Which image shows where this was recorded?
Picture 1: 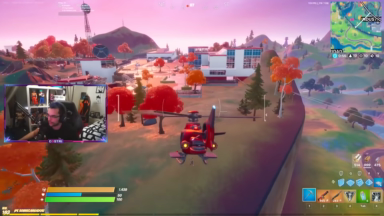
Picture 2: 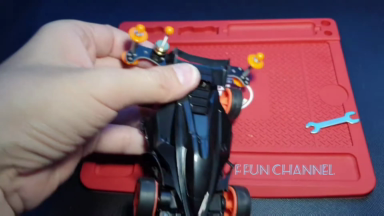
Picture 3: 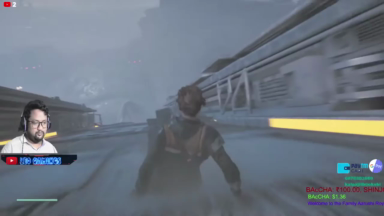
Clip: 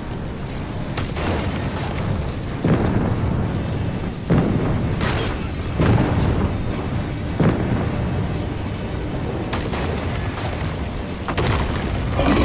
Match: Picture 3